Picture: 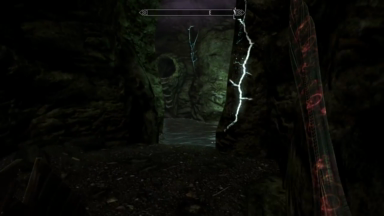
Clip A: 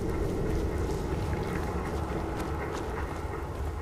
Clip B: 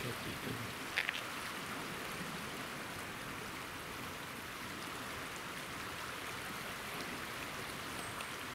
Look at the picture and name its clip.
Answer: A